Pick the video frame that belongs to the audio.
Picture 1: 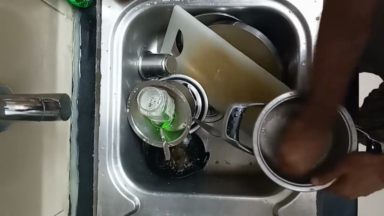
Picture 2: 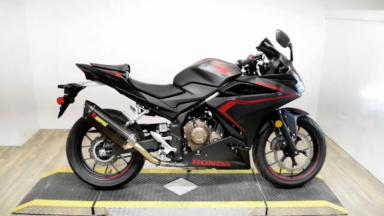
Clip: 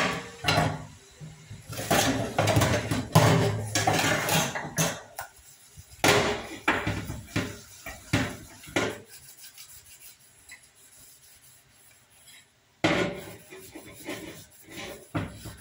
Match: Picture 1